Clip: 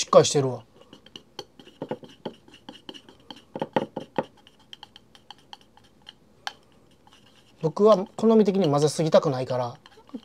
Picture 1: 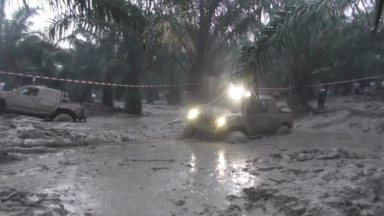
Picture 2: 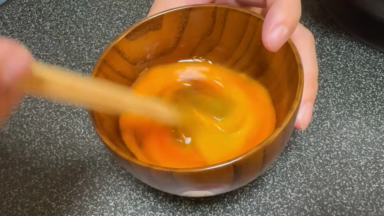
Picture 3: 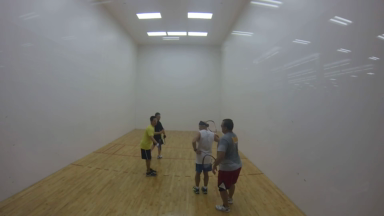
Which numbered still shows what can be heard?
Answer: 2